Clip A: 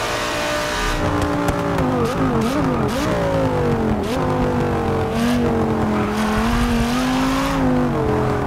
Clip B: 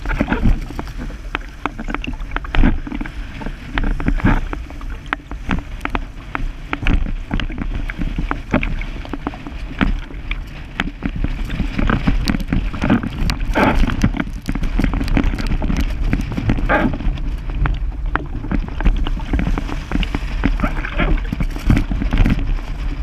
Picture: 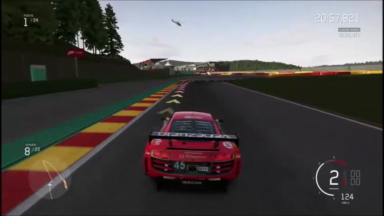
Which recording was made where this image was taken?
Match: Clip A